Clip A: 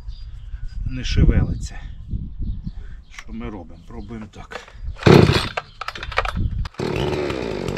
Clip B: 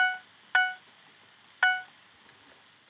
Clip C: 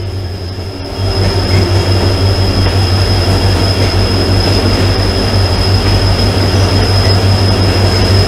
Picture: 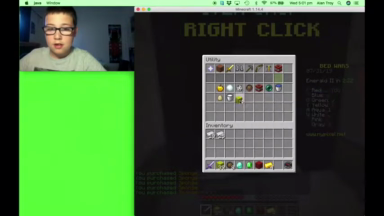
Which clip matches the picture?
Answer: B